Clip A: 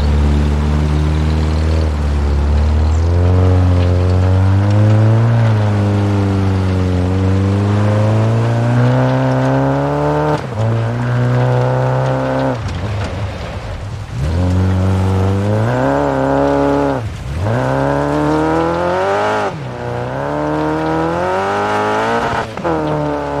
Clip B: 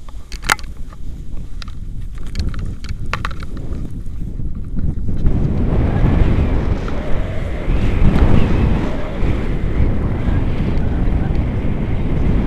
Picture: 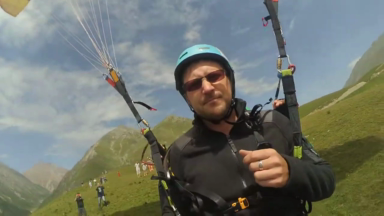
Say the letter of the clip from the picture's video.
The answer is B